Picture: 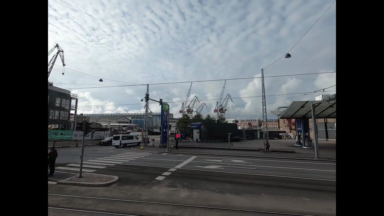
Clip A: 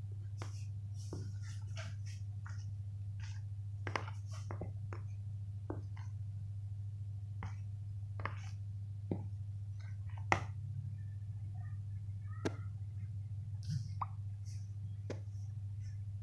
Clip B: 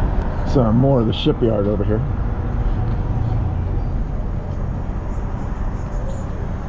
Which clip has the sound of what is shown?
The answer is B